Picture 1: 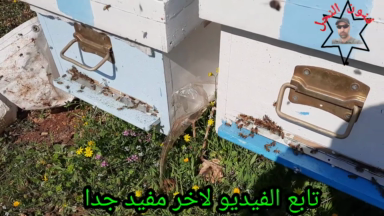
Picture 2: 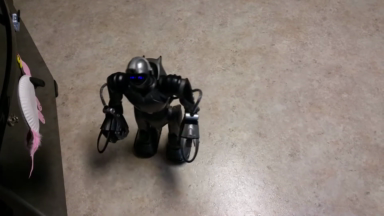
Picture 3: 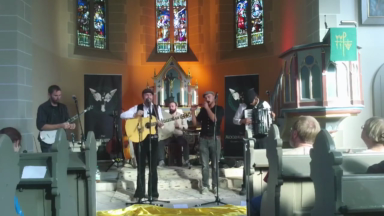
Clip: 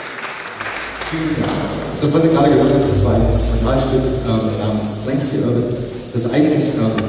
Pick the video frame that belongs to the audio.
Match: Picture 3